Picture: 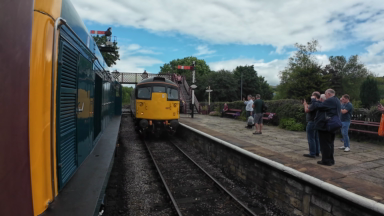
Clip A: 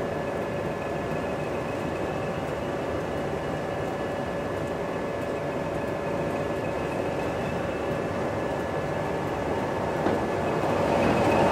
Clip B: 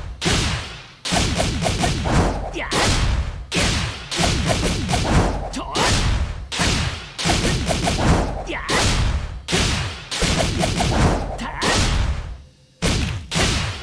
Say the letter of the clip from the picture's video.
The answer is A